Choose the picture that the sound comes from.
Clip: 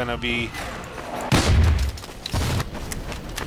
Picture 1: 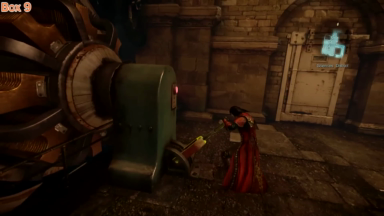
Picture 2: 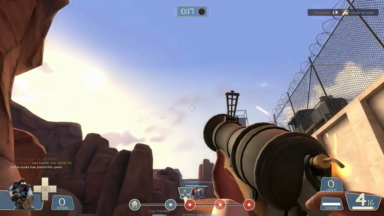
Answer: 2